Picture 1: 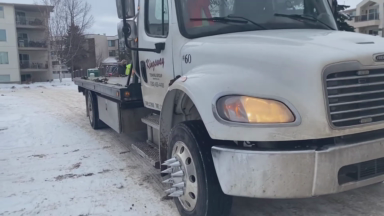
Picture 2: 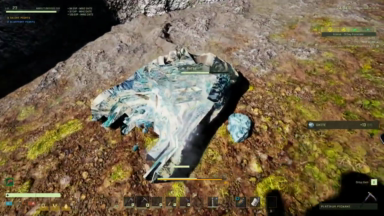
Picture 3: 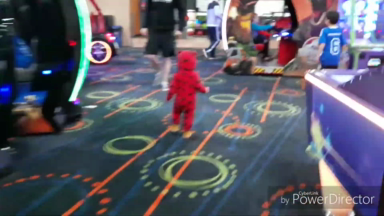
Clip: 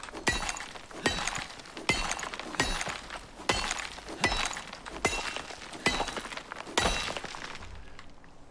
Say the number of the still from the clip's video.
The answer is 2